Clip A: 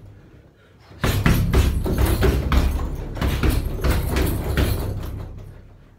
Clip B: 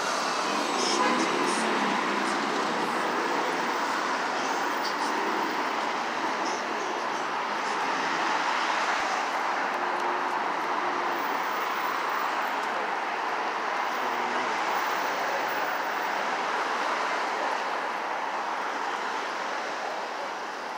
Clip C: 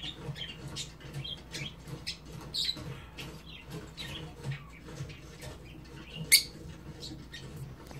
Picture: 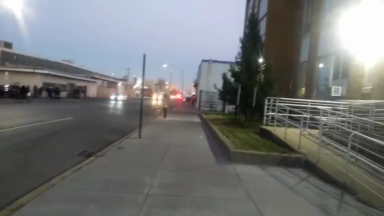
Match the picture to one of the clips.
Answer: B